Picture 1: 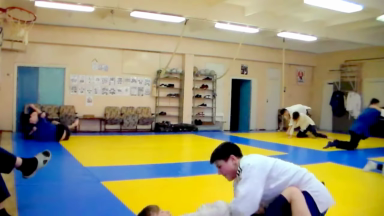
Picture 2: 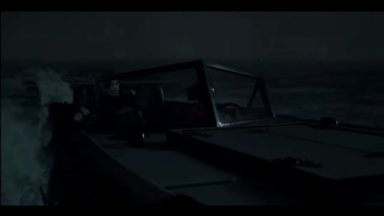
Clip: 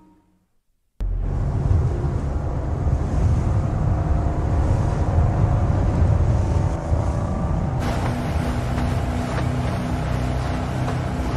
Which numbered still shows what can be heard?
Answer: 2